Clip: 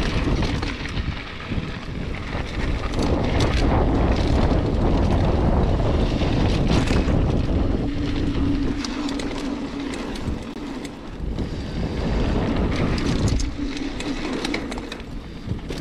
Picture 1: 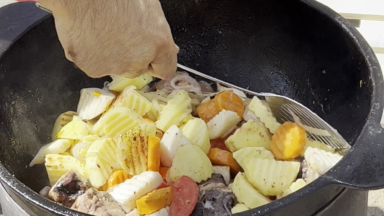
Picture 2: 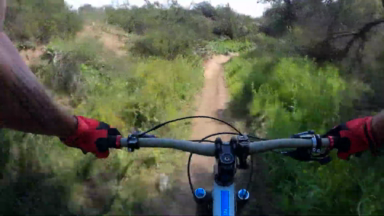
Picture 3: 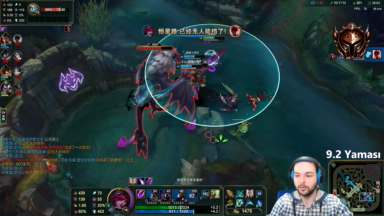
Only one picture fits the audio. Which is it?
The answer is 2